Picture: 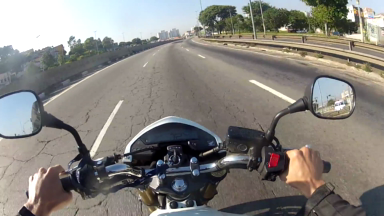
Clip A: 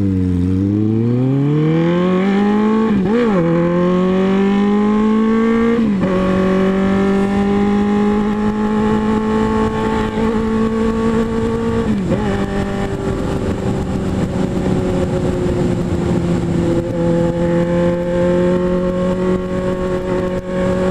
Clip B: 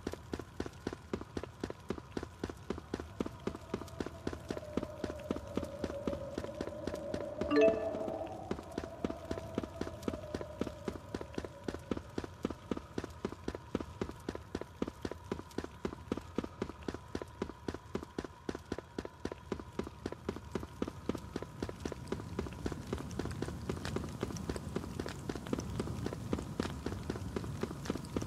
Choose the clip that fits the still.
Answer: A